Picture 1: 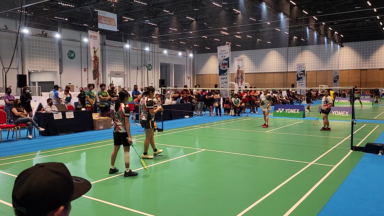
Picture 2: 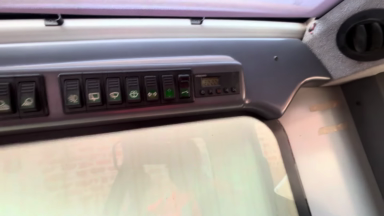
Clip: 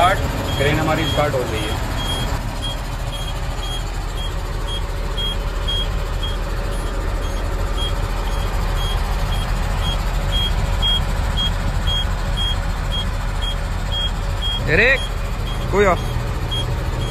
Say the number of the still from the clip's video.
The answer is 2